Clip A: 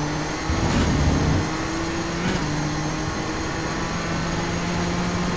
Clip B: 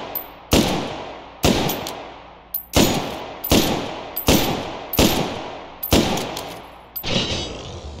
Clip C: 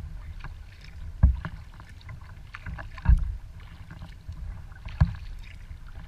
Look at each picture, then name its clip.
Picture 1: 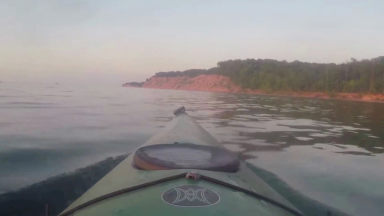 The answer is C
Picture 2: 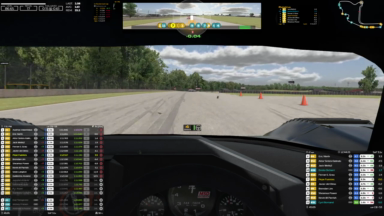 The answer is A